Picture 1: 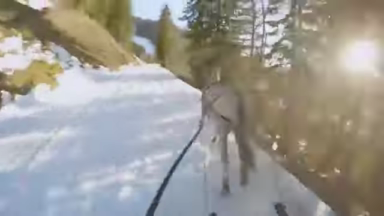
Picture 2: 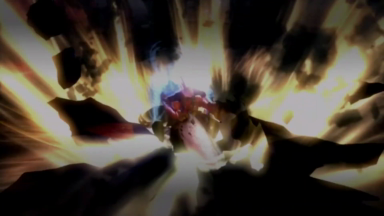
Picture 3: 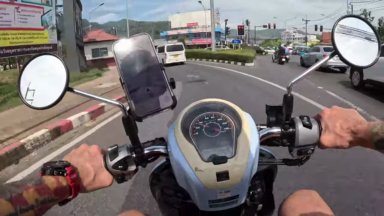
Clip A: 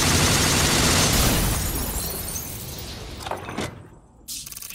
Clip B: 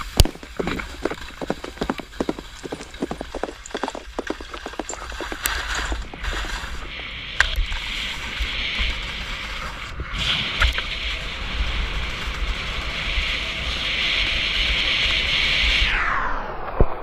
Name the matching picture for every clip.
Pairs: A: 2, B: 1